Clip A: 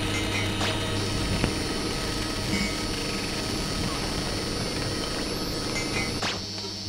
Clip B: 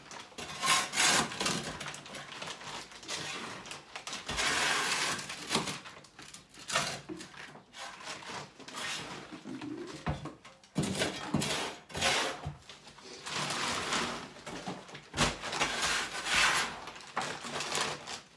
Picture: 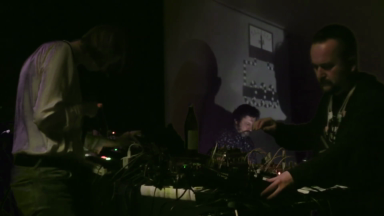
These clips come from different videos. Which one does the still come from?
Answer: A